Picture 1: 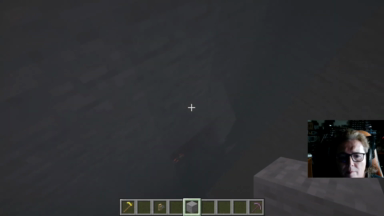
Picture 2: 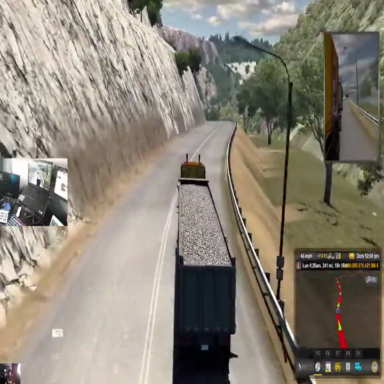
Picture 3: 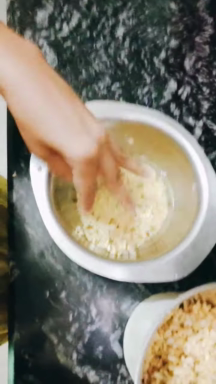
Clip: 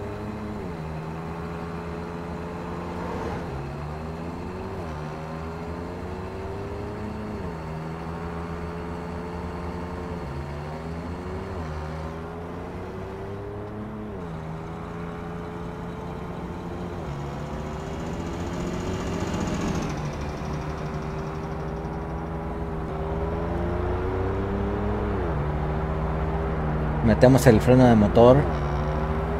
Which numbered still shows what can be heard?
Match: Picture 2